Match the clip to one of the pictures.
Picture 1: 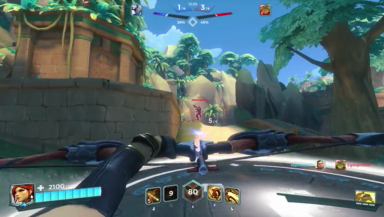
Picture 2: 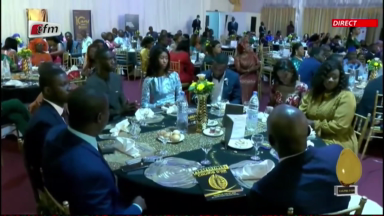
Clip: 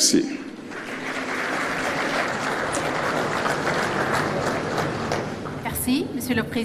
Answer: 2